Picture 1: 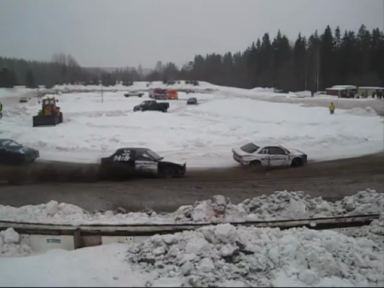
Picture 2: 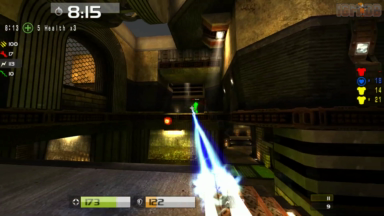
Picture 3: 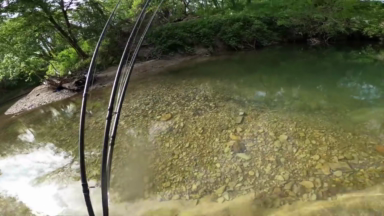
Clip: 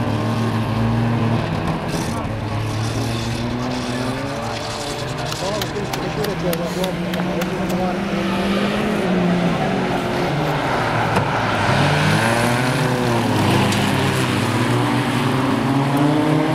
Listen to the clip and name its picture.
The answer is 1